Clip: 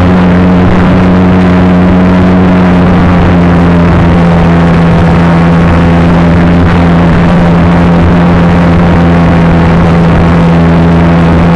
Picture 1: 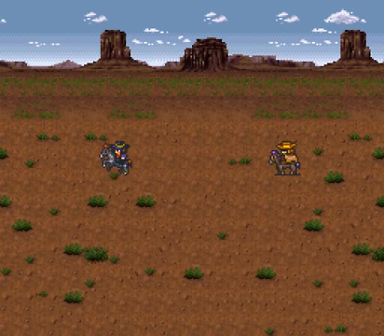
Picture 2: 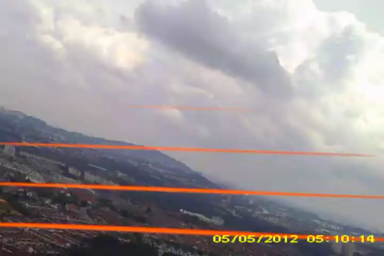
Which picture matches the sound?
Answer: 2